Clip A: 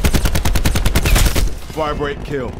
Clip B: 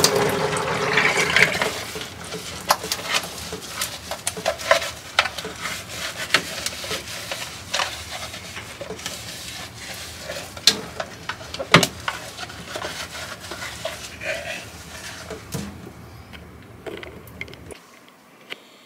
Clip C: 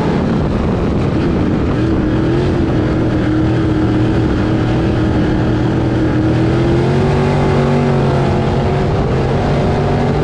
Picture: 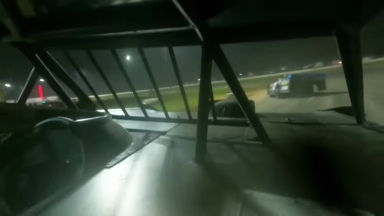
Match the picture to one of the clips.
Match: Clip C